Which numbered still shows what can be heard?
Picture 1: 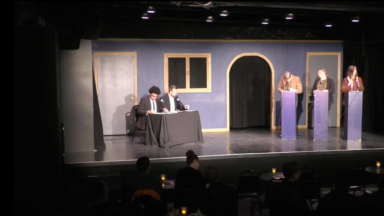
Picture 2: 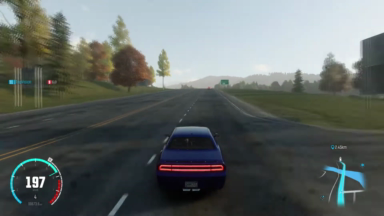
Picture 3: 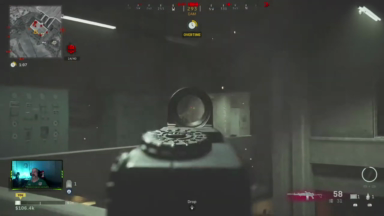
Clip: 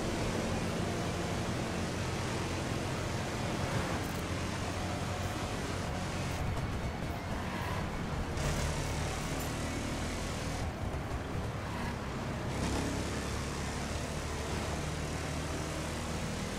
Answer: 2